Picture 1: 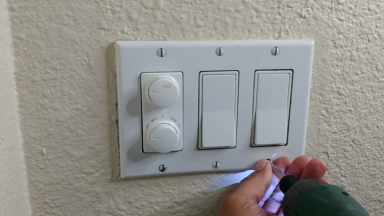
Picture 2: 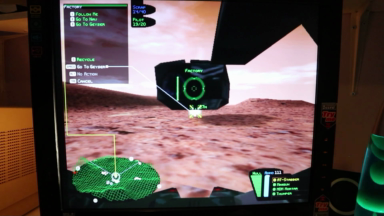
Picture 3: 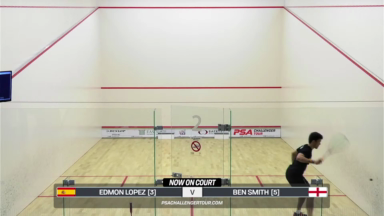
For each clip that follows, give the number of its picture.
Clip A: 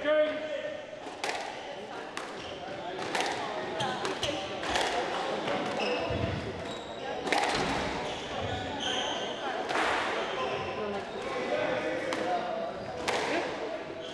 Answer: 3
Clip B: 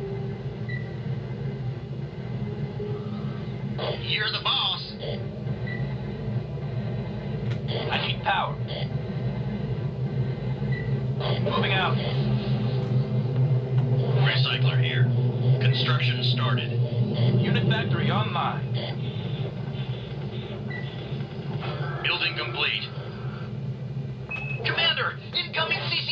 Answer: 2